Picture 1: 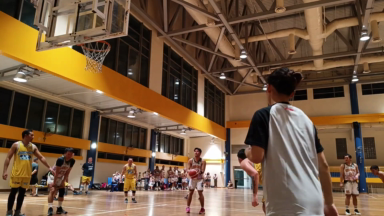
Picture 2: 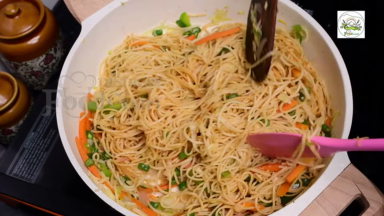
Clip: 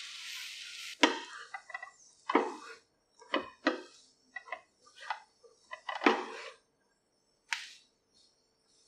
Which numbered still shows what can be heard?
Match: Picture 2